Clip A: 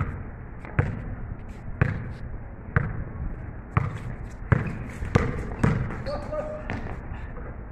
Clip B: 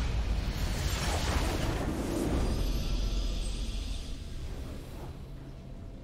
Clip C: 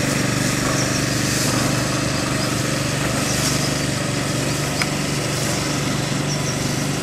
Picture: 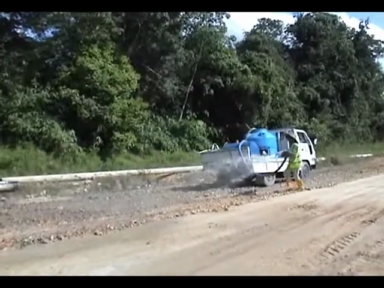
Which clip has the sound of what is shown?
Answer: C